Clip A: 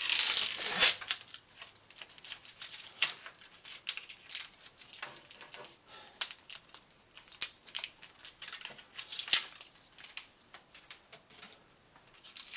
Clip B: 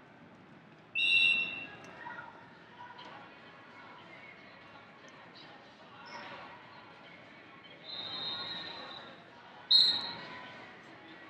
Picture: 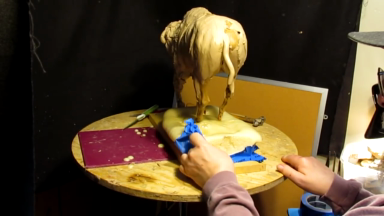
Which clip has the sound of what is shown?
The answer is A